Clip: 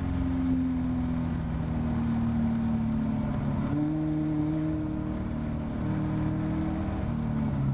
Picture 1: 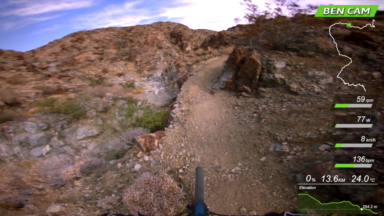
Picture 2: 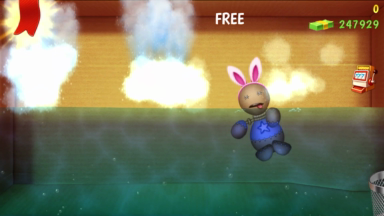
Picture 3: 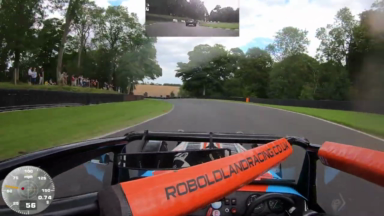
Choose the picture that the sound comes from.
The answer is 3